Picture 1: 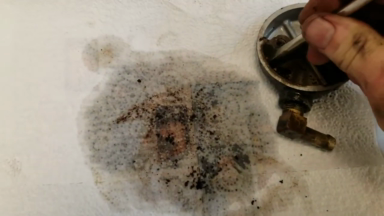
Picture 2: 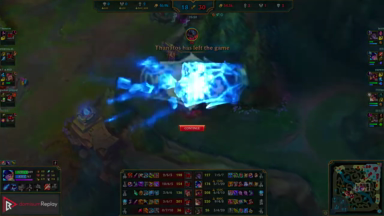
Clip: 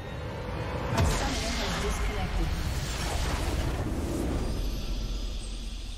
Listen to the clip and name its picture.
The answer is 2